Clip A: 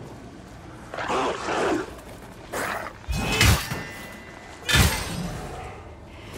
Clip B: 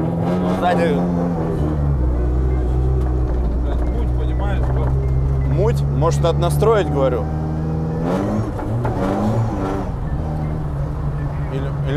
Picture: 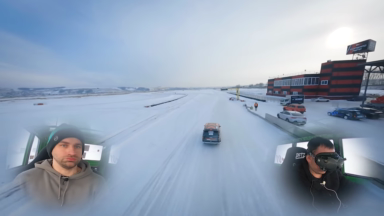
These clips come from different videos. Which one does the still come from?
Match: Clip B